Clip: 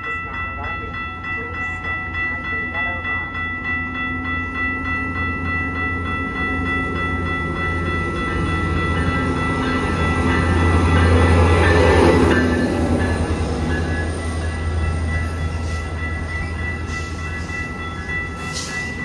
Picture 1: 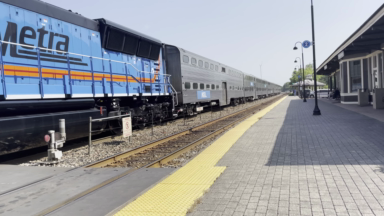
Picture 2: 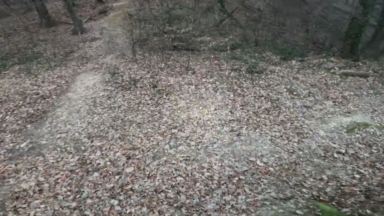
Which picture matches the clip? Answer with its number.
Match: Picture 1